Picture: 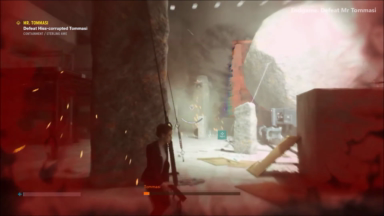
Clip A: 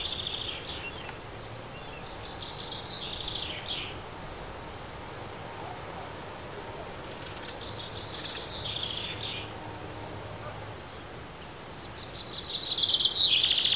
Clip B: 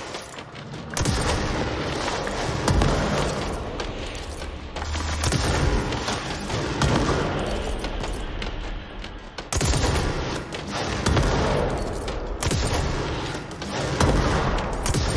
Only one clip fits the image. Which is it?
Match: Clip B